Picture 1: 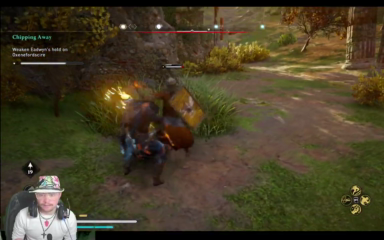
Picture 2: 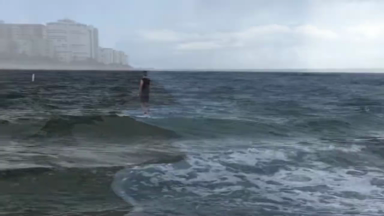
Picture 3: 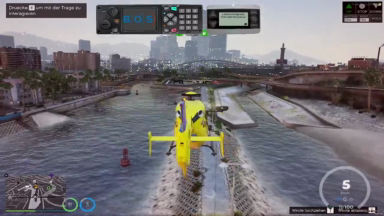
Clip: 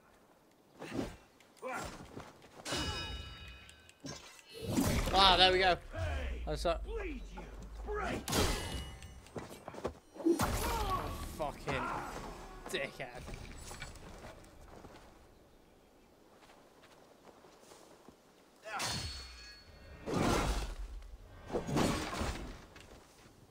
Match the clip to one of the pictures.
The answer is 1